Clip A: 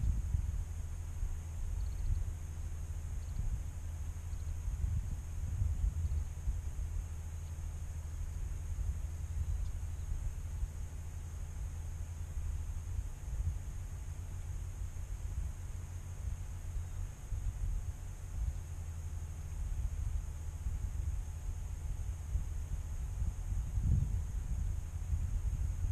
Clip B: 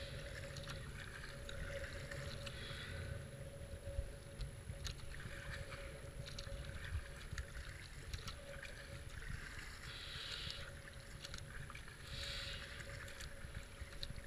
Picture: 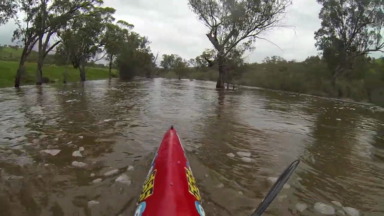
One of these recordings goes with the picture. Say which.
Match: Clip B